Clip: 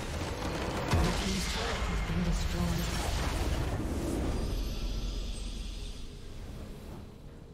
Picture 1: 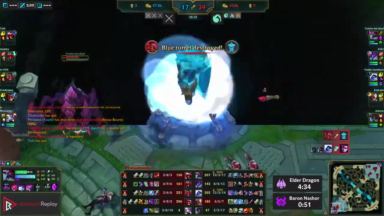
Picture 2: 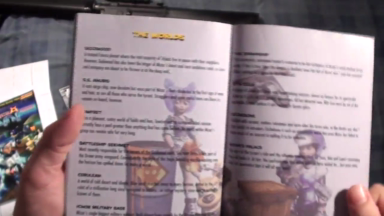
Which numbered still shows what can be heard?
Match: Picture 1